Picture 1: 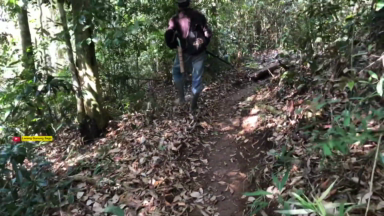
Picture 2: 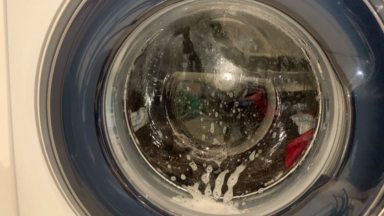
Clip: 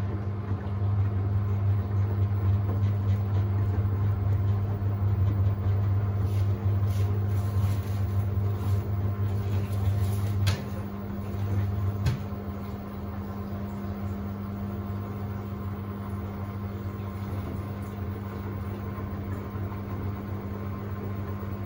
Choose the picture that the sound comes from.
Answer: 2